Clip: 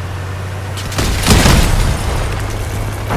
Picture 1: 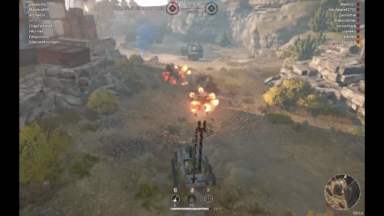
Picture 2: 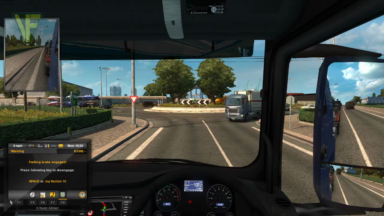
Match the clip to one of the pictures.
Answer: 1